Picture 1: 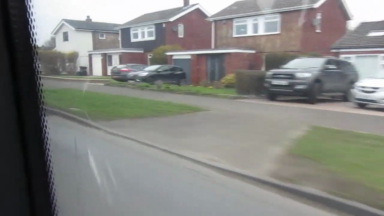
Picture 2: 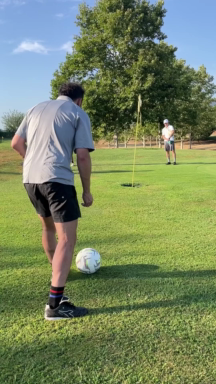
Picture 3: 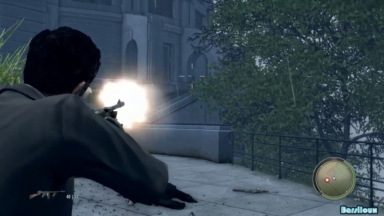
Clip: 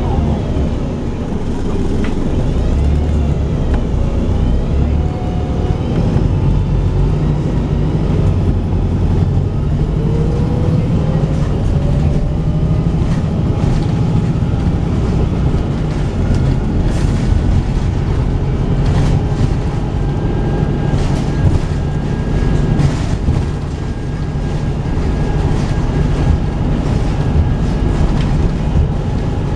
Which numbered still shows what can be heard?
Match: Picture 1